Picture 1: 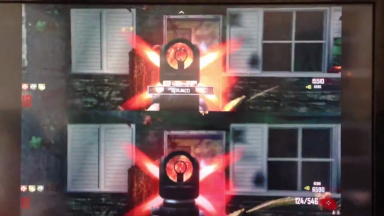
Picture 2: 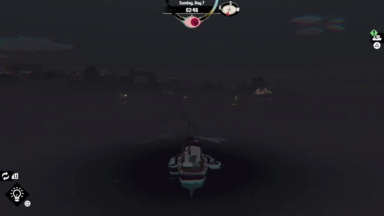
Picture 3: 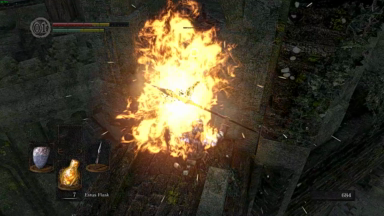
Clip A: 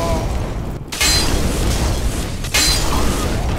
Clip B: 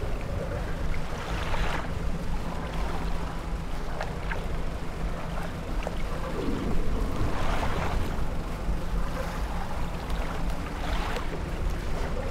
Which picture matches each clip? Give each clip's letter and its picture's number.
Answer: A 3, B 2